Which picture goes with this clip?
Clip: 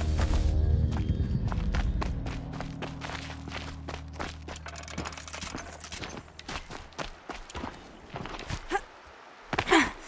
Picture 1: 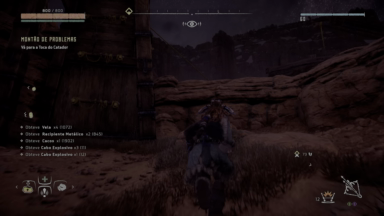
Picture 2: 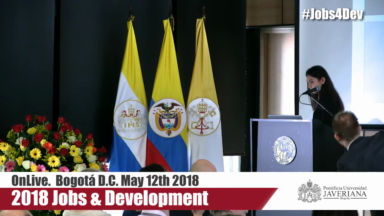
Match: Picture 1